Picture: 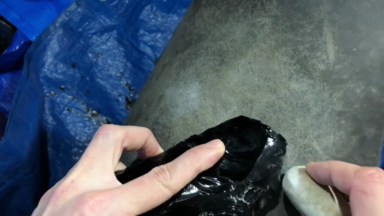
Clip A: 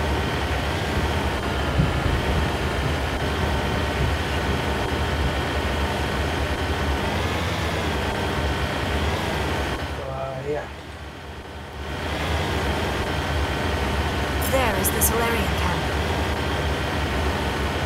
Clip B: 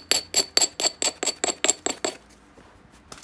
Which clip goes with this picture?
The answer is B